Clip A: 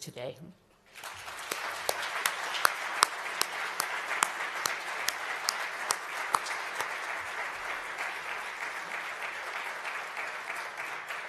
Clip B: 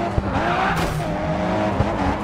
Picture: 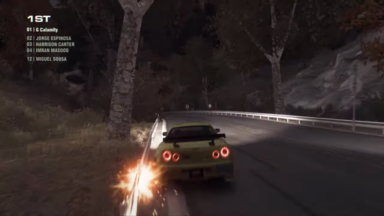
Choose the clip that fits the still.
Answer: B